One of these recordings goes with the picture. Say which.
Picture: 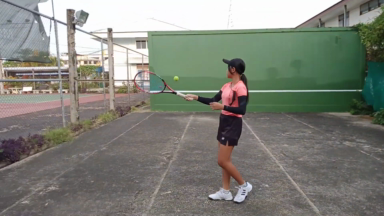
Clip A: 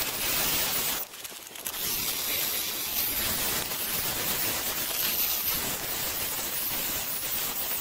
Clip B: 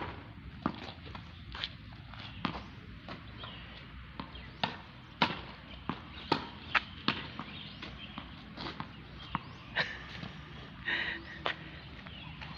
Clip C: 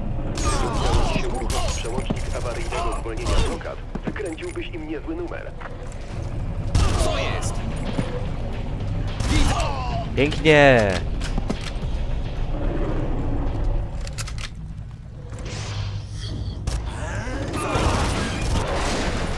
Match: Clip B